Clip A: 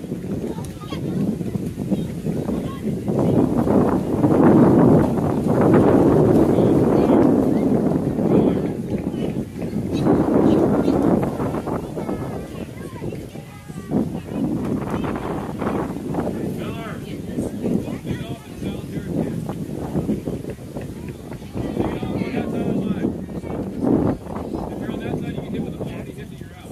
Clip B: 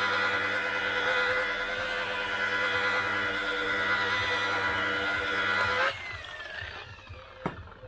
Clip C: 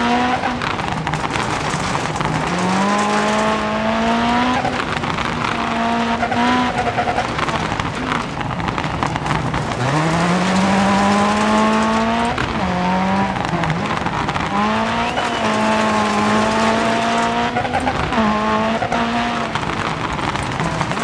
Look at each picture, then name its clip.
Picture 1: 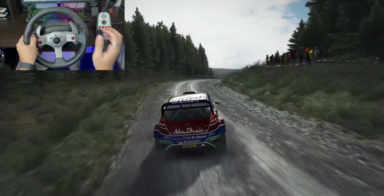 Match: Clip C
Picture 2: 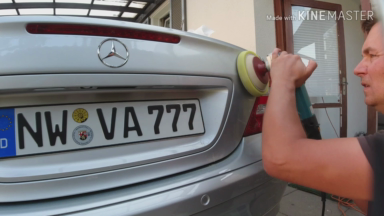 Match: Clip B